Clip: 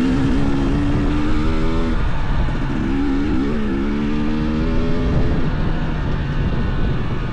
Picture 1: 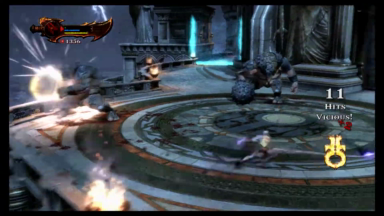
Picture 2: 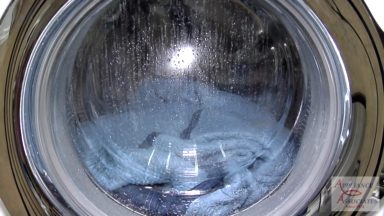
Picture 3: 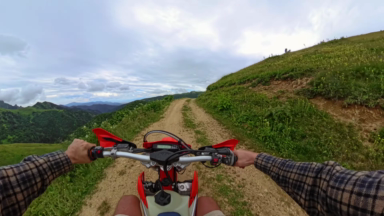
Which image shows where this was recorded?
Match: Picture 3